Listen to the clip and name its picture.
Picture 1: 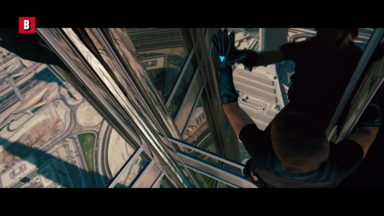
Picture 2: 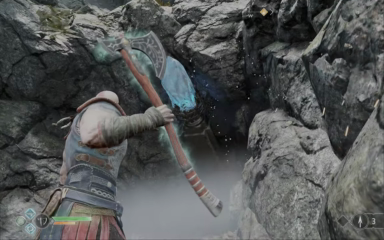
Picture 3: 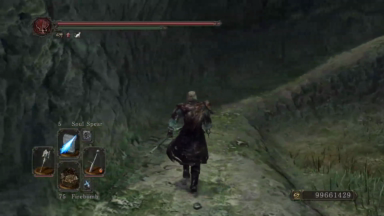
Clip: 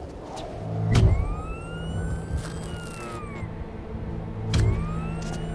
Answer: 1